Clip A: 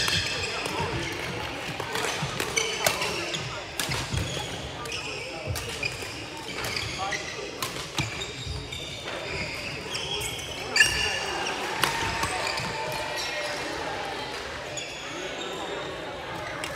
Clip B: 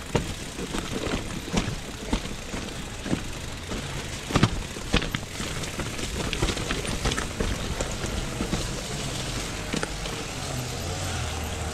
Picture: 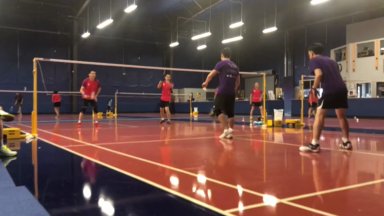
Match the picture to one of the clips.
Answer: A